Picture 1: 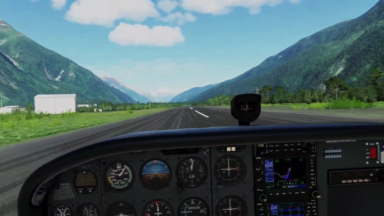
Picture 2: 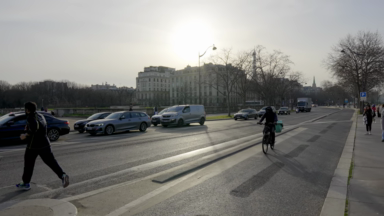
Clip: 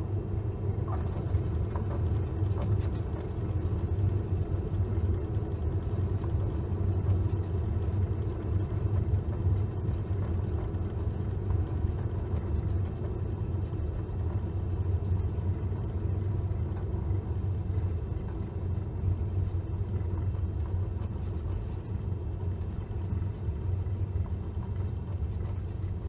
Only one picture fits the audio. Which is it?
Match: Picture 1